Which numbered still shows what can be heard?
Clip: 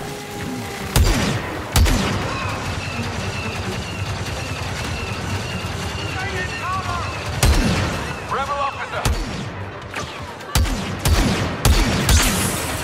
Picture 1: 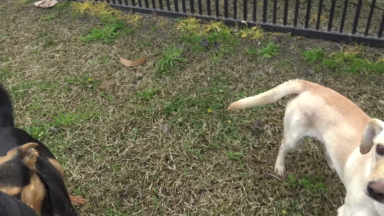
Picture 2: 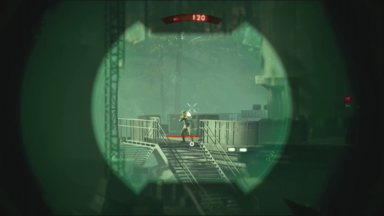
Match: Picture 2